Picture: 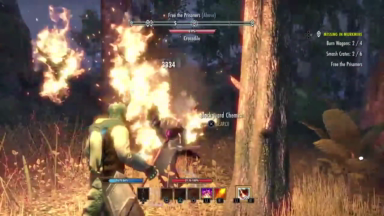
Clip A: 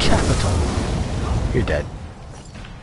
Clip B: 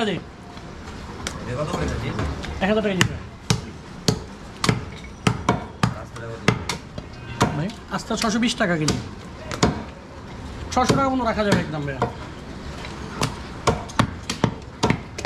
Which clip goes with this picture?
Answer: A